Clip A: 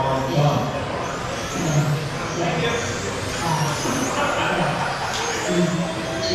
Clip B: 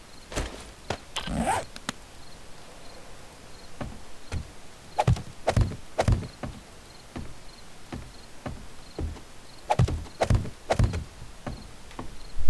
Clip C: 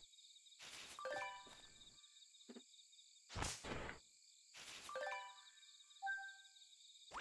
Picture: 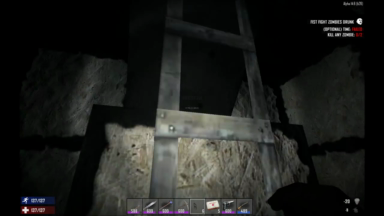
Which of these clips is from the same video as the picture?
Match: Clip B